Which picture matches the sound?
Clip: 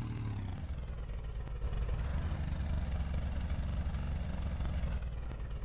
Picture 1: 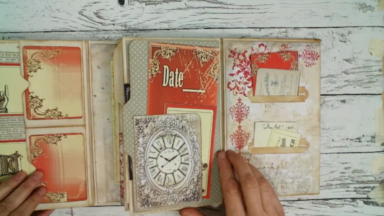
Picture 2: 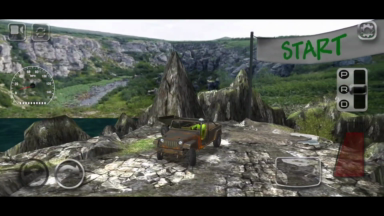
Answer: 2